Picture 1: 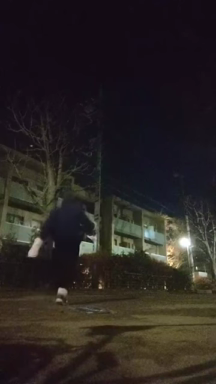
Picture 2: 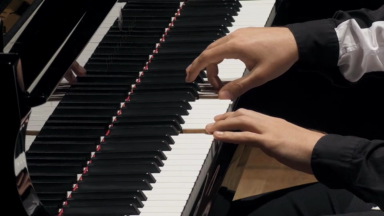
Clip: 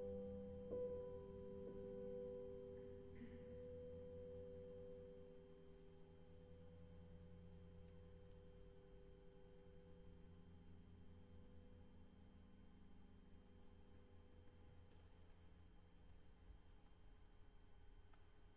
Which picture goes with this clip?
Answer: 2